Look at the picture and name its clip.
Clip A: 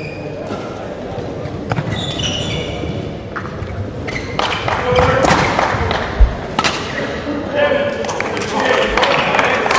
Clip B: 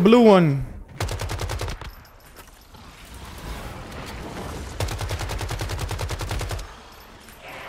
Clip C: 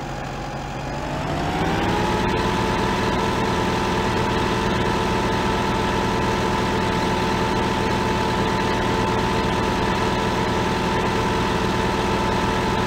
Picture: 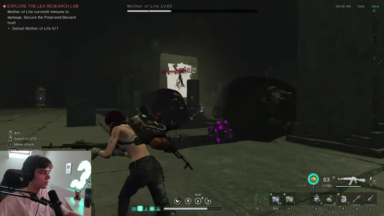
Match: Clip B